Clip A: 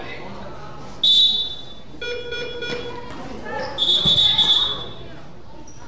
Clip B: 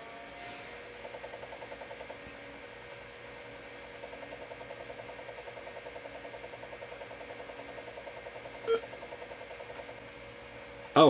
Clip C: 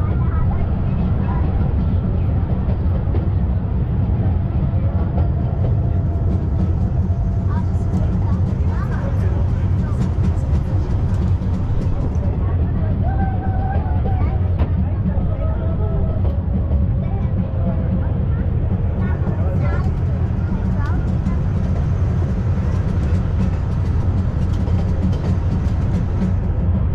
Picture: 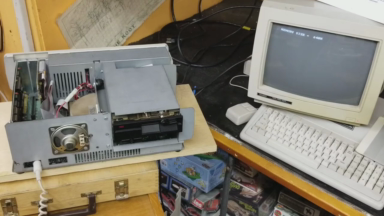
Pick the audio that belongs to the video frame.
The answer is B